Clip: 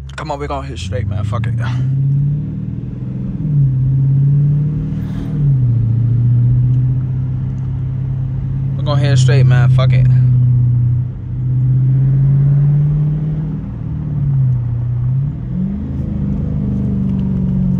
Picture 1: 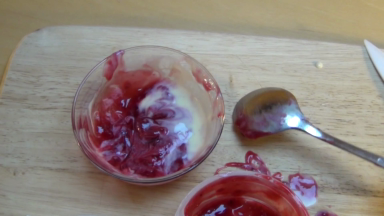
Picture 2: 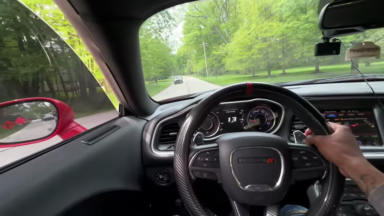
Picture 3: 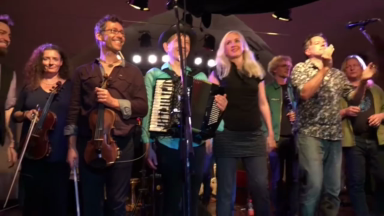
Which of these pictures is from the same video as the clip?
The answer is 2